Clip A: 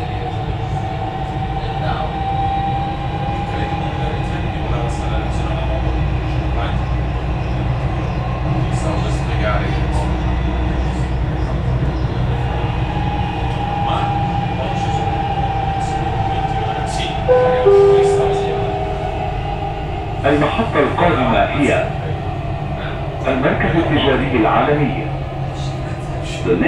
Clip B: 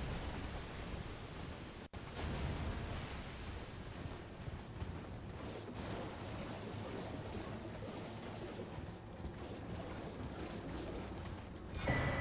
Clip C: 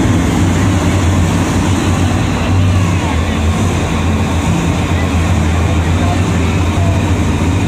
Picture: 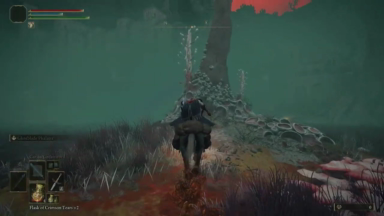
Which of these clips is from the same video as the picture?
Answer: B